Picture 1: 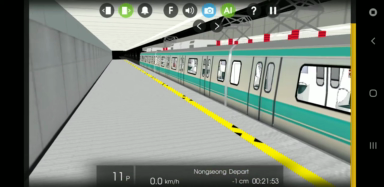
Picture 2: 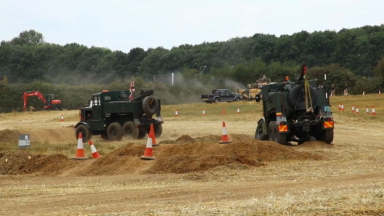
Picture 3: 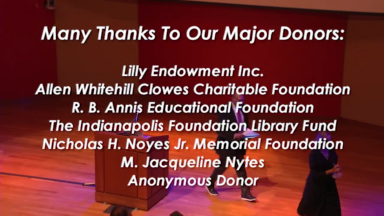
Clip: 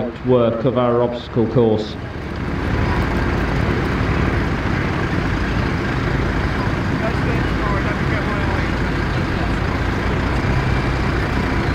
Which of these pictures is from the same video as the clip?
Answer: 2